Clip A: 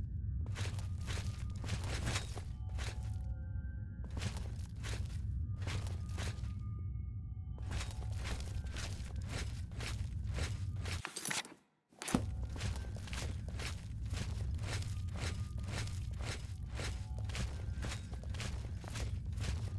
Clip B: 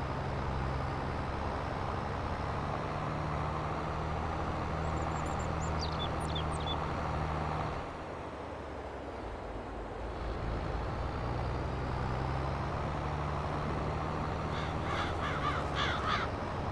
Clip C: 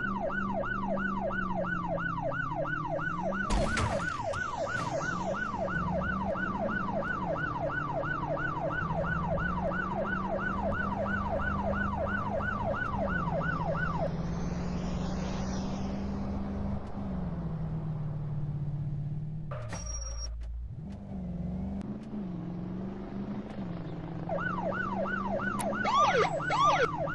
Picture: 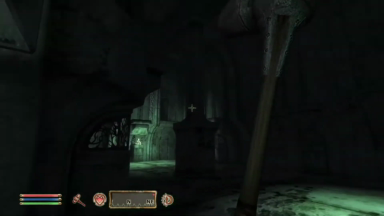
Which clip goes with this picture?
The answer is A